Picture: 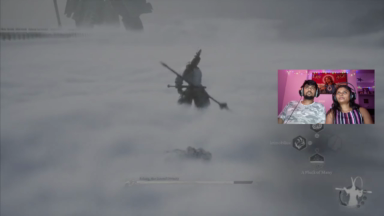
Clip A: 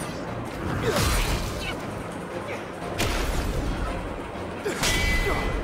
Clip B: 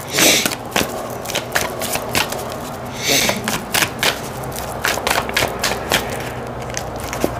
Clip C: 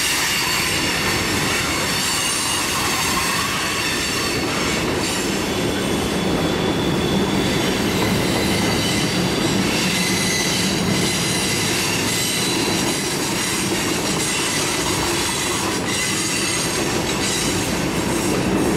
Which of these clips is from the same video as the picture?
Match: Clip A